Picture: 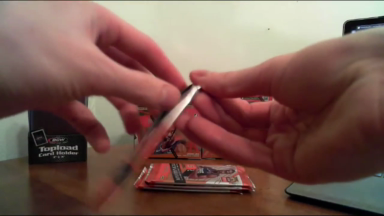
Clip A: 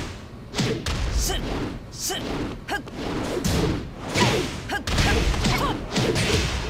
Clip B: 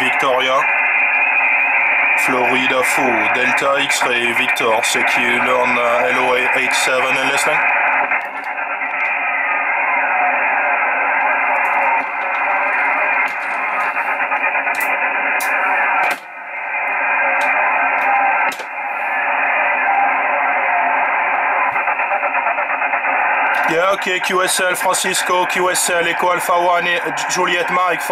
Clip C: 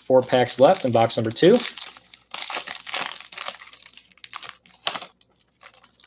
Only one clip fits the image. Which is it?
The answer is C